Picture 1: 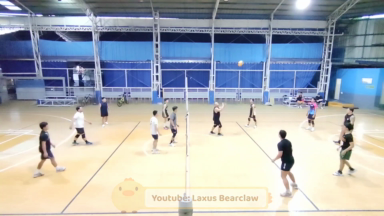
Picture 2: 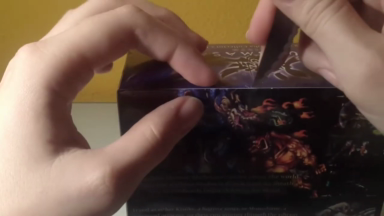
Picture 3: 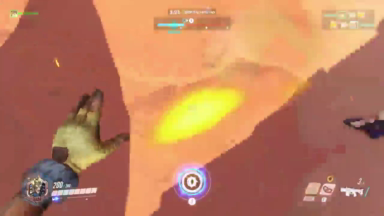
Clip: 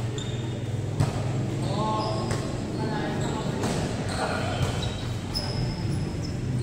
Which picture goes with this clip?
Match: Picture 1